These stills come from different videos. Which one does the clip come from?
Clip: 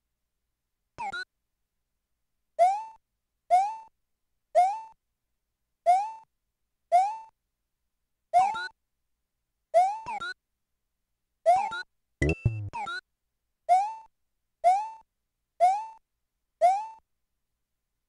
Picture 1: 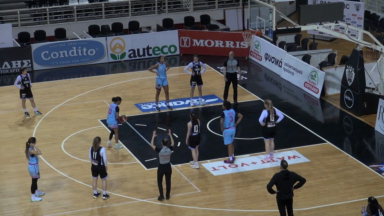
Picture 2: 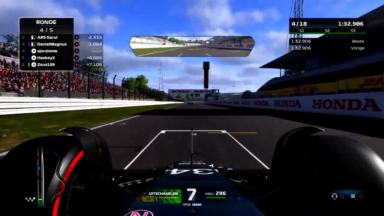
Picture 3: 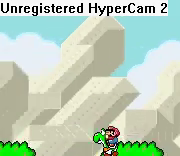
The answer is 3